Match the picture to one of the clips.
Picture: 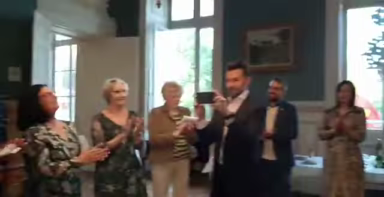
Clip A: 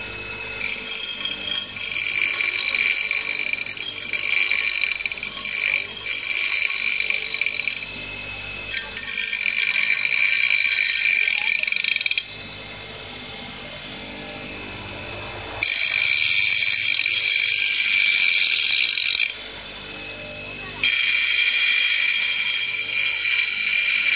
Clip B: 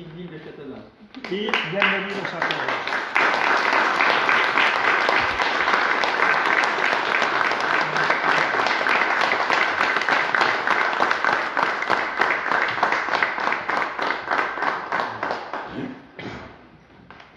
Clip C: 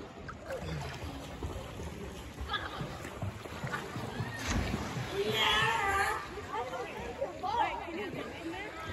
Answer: B